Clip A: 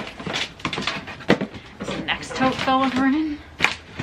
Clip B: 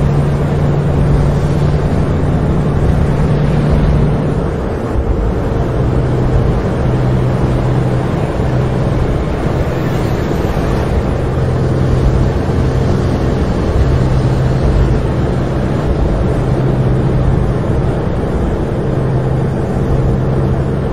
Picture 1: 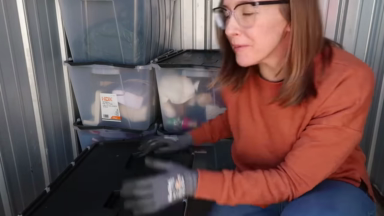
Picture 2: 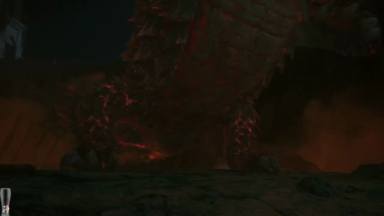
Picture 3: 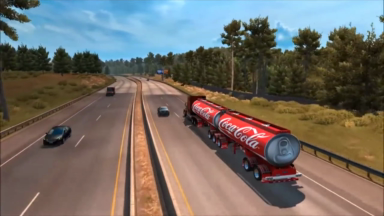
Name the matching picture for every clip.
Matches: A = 1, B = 3